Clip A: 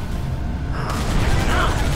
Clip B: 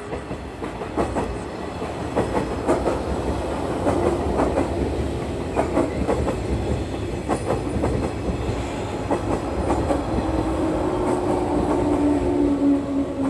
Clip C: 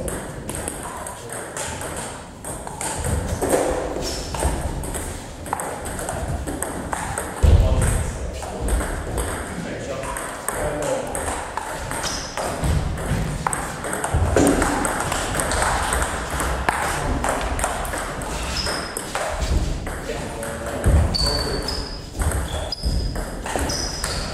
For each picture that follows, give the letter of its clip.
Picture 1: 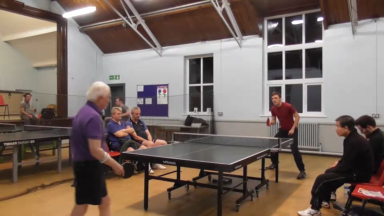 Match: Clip C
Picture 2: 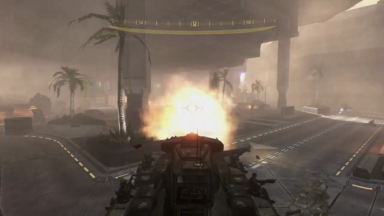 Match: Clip A